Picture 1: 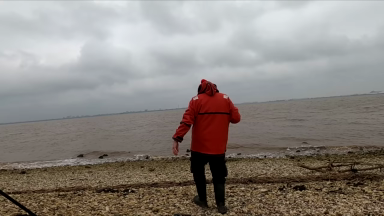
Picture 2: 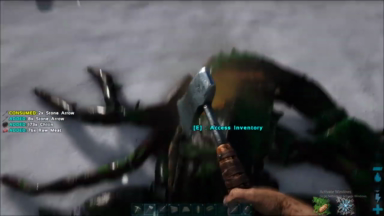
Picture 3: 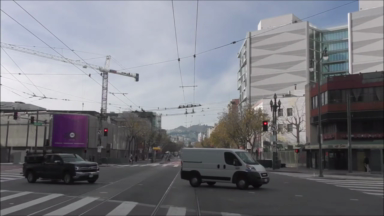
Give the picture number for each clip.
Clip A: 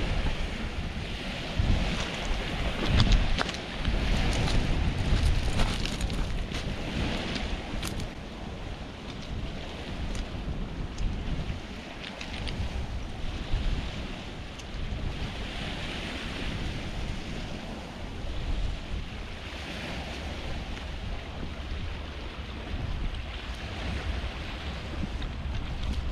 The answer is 1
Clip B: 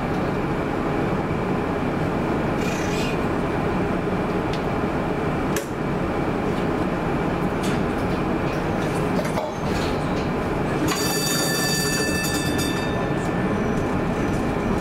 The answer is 3